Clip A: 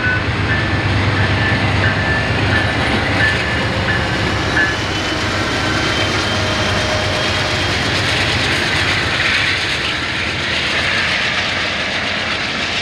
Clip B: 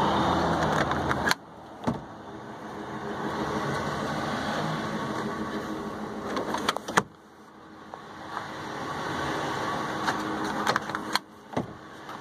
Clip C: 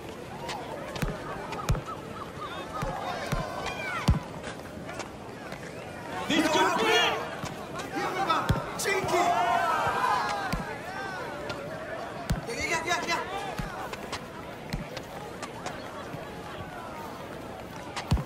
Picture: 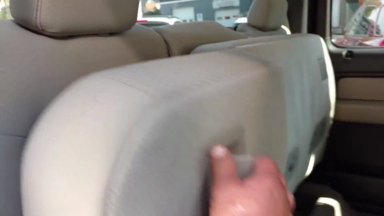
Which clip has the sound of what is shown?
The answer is B